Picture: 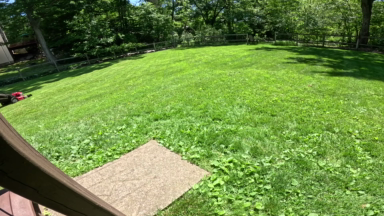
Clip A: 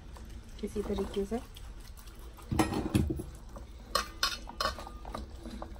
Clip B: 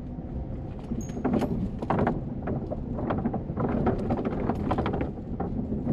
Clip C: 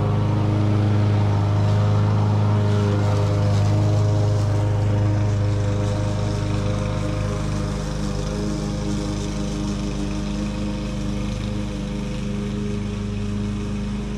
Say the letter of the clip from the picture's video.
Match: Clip C